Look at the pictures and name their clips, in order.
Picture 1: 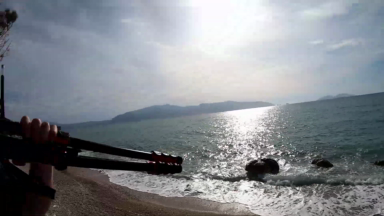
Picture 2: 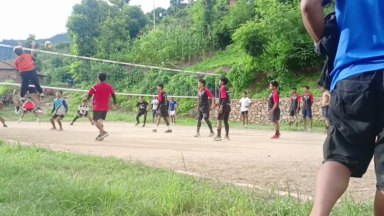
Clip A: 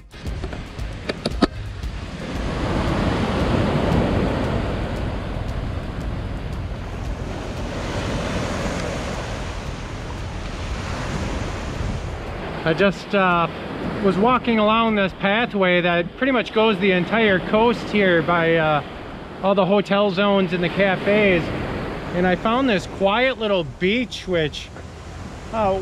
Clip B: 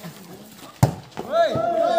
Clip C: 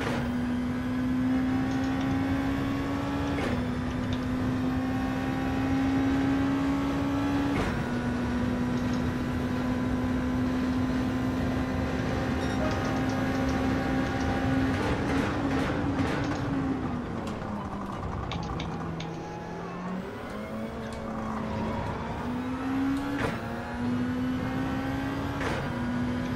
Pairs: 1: A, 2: B